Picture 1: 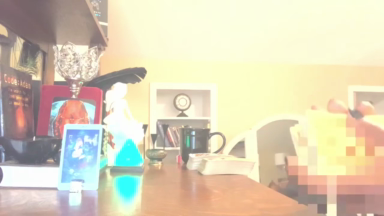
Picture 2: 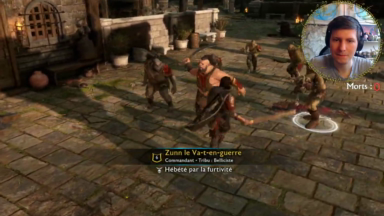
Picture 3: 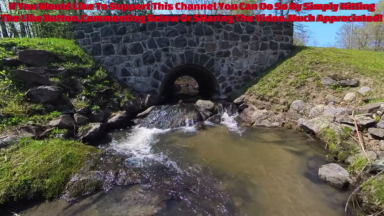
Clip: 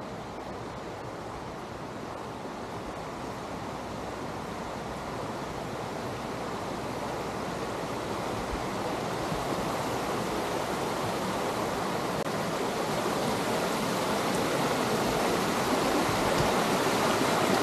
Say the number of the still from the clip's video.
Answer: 3